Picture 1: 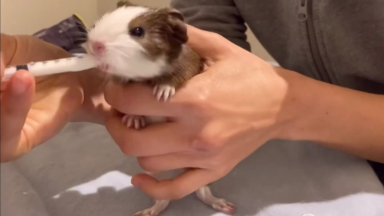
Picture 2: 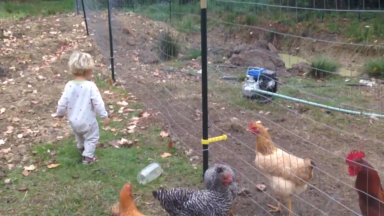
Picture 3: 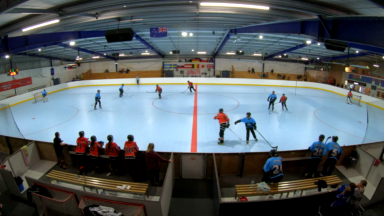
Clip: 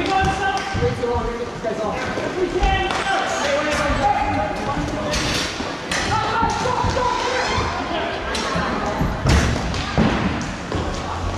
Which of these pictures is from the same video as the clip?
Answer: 3